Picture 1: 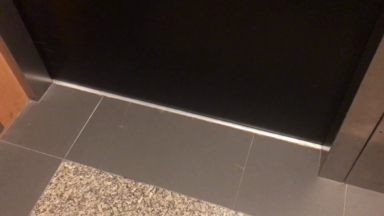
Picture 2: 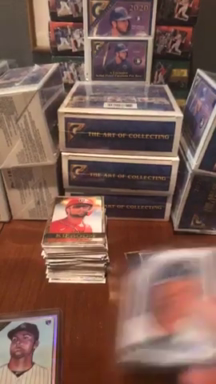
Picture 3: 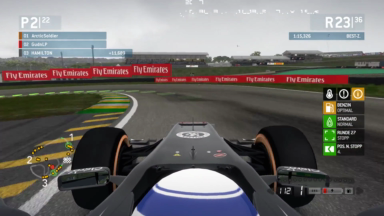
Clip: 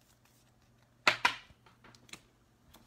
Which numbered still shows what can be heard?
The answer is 2